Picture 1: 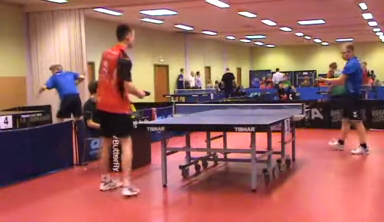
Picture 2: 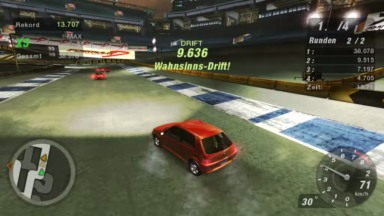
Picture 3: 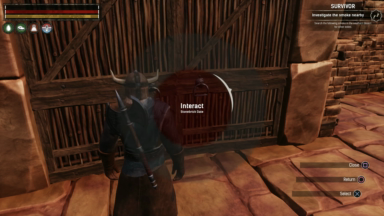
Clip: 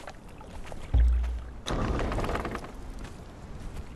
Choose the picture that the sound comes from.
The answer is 3